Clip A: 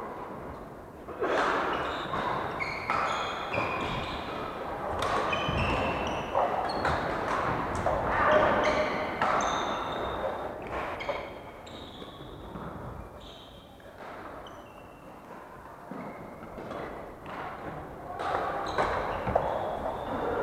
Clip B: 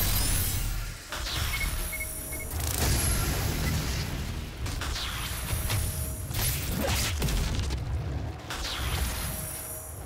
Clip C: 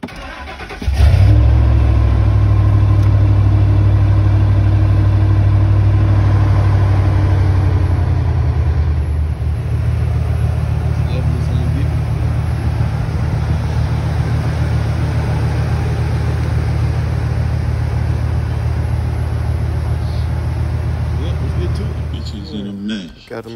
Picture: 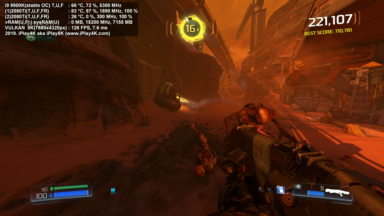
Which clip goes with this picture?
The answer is B